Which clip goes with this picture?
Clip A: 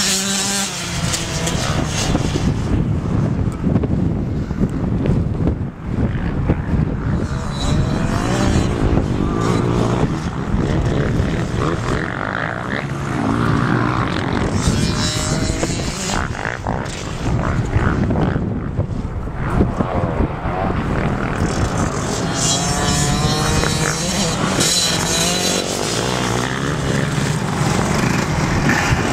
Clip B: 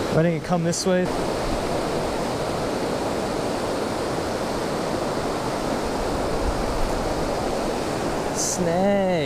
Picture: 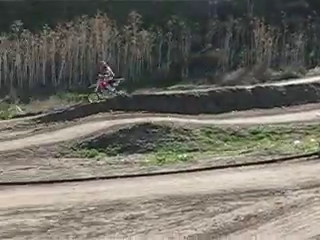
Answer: A